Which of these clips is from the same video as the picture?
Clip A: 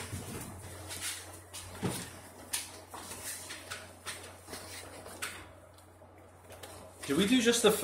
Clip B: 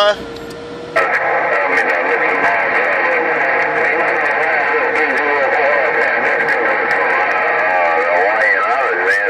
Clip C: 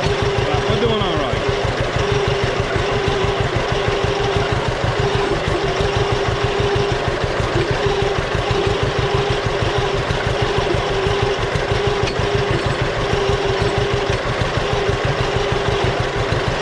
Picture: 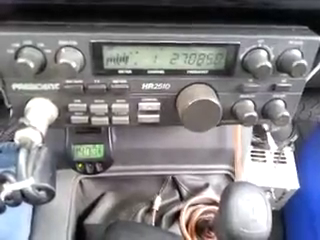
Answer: B